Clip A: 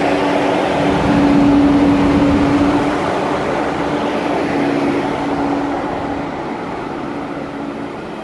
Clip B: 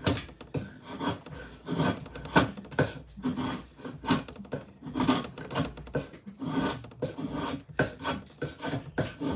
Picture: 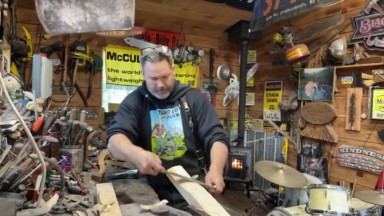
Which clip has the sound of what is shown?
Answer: B